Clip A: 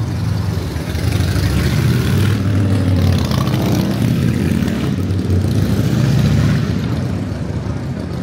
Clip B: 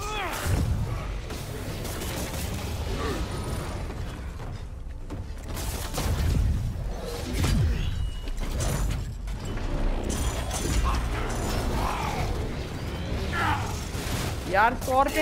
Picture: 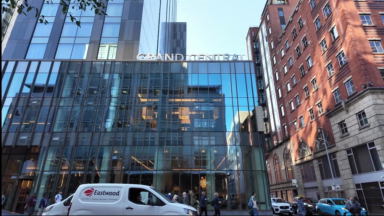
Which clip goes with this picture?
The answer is A